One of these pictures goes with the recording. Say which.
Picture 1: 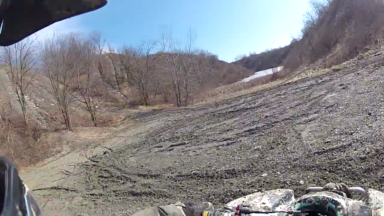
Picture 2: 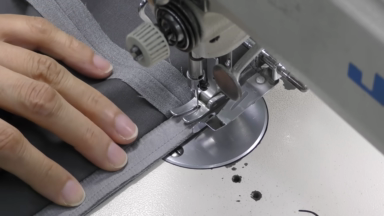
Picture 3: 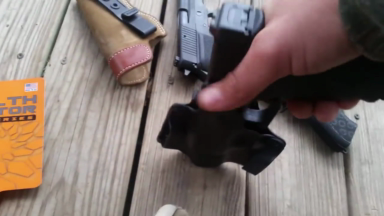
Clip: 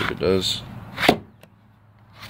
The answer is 3